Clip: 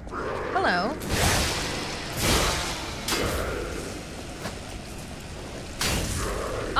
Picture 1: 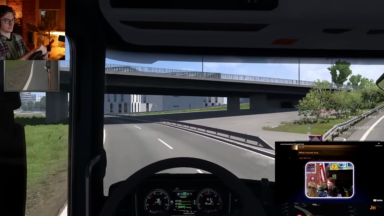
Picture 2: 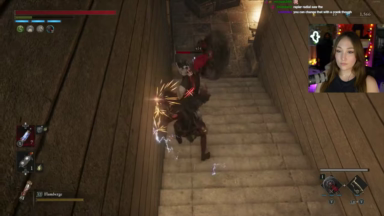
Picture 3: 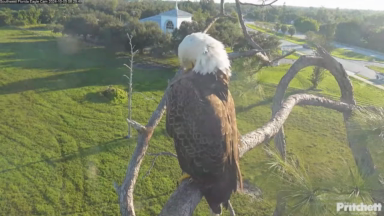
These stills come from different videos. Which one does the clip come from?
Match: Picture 2